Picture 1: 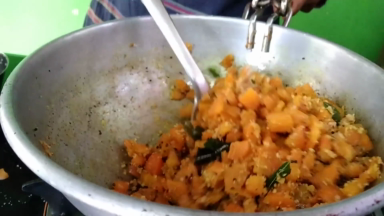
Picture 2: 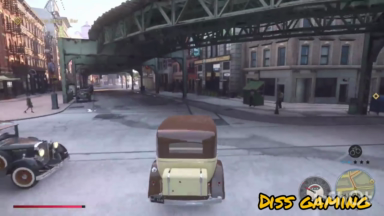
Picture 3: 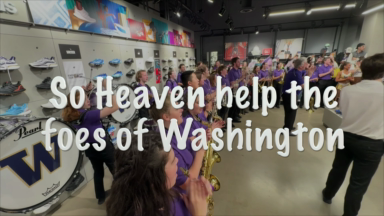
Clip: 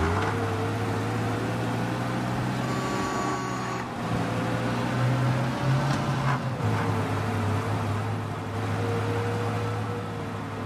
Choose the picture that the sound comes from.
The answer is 2